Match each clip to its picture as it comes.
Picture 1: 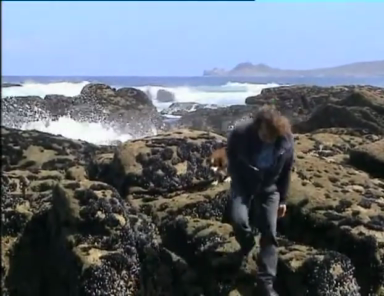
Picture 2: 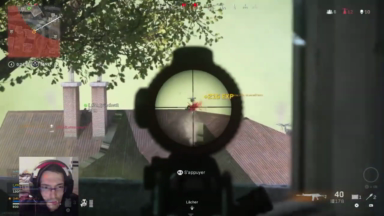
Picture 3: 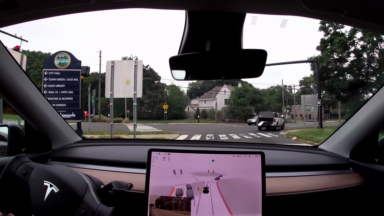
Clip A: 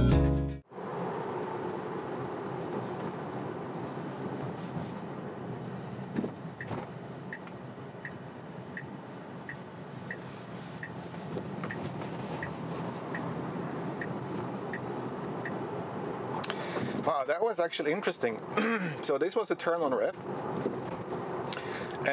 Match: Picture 3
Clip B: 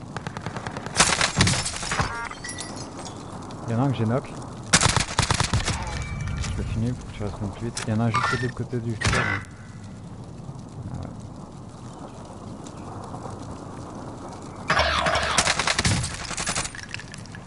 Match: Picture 2